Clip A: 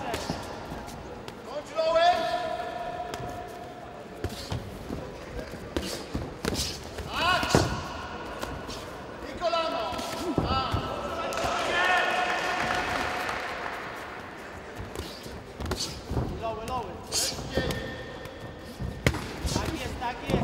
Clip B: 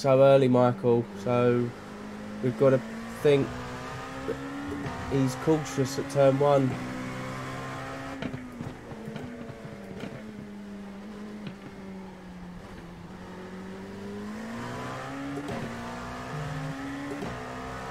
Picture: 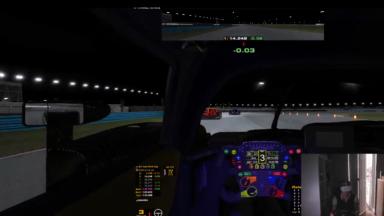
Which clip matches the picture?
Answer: B